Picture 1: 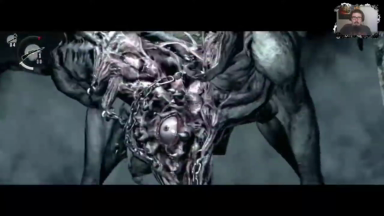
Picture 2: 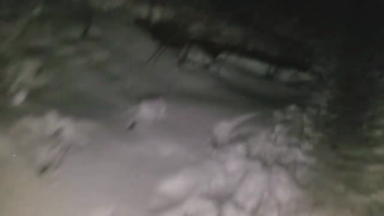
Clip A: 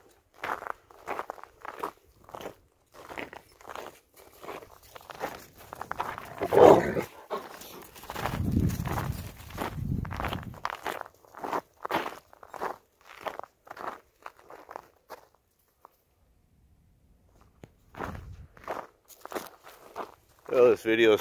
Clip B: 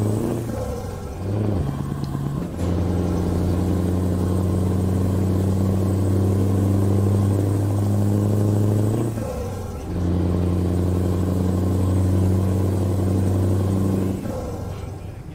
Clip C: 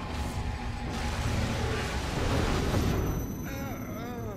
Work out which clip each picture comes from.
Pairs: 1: C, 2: A